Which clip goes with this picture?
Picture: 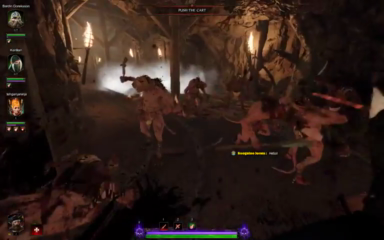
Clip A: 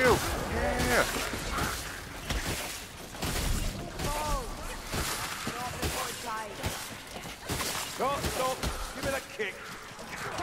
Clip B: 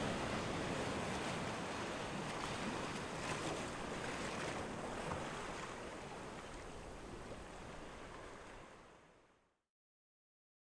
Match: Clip A